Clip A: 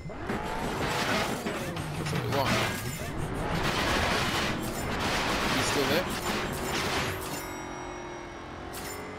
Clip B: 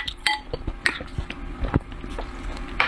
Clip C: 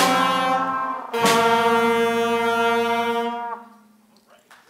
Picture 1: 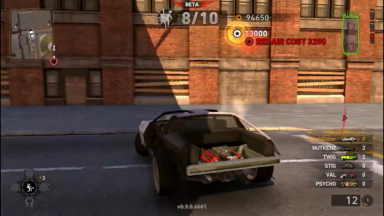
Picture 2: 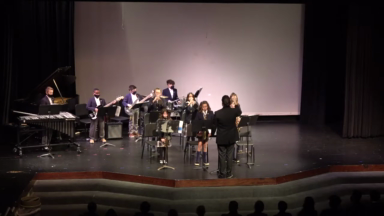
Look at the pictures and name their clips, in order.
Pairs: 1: A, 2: C